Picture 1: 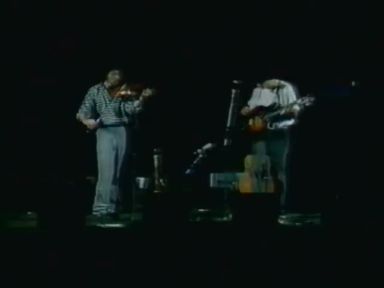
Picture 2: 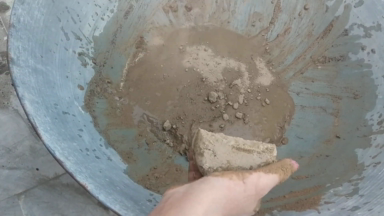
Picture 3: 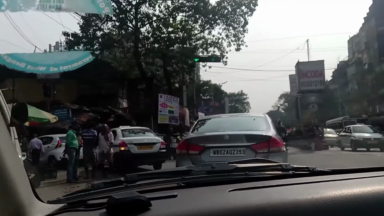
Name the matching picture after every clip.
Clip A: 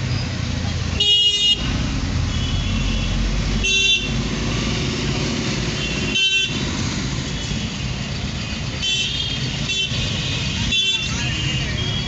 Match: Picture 3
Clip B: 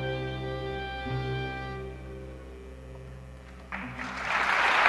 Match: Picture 1